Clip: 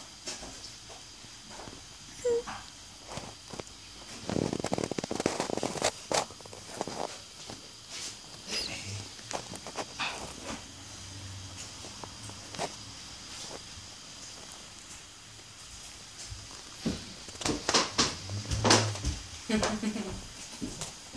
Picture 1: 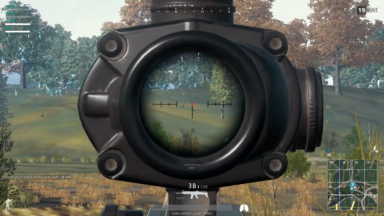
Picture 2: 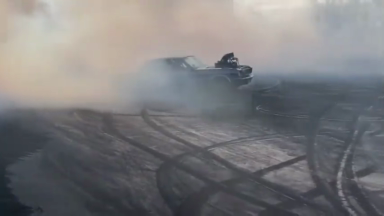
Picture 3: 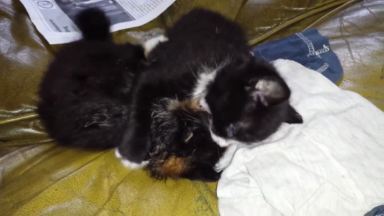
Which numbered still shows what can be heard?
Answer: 3